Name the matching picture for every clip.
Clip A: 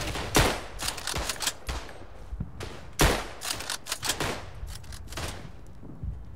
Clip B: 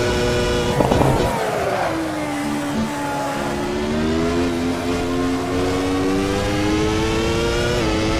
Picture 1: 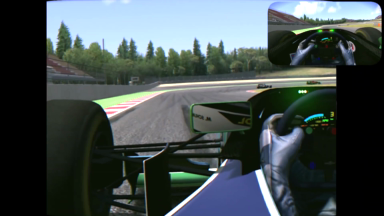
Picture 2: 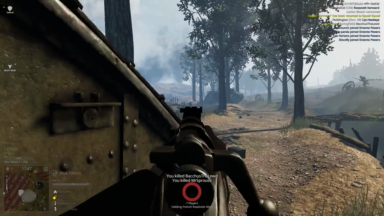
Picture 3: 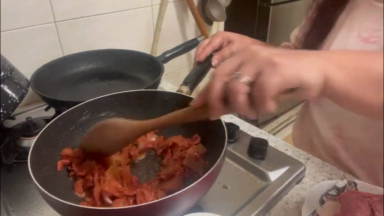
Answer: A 2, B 1